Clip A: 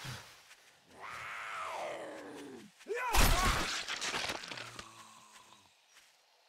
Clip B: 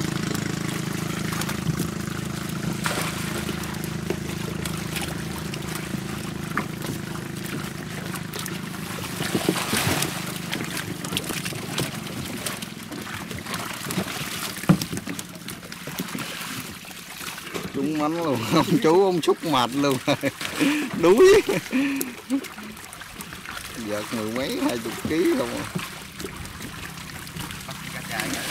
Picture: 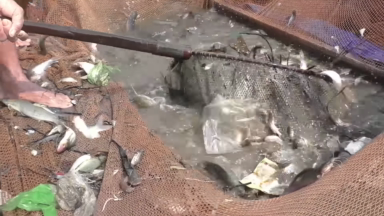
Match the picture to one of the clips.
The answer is B